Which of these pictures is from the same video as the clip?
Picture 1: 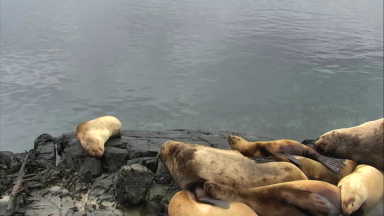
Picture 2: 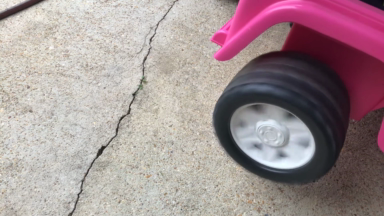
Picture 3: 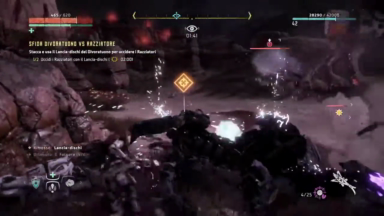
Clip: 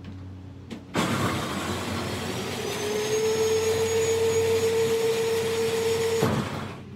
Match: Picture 2